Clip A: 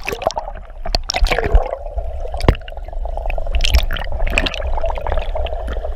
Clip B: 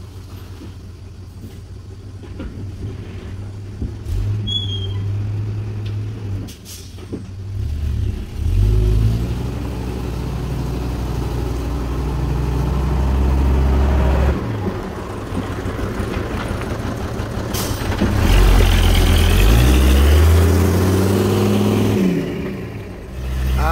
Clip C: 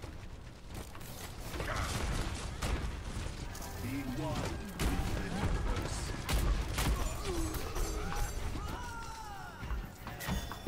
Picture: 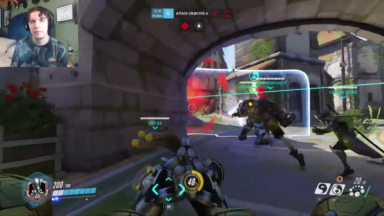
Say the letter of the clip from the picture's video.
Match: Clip C